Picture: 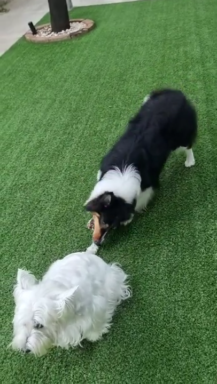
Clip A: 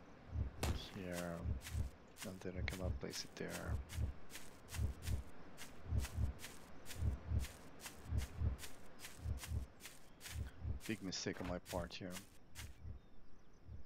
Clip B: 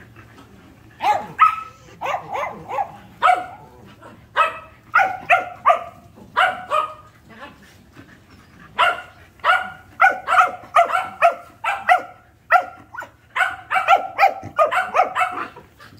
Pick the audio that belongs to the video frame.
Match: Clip B